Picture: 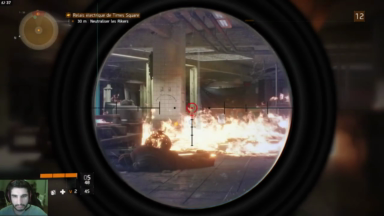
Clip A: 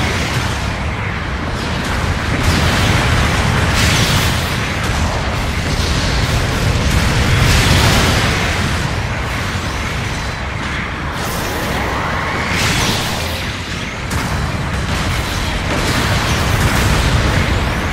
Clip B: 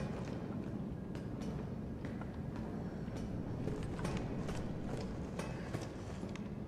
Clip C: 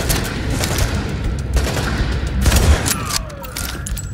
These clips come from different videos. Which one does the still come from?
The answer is C